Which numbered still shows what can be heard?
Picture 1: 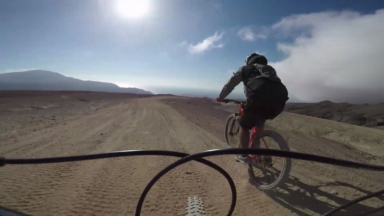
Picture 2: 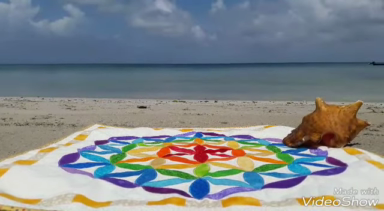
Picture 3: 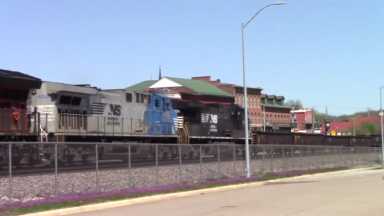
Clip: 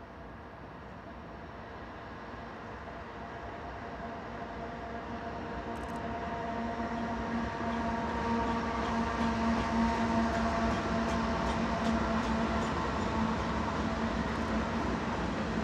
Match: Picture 3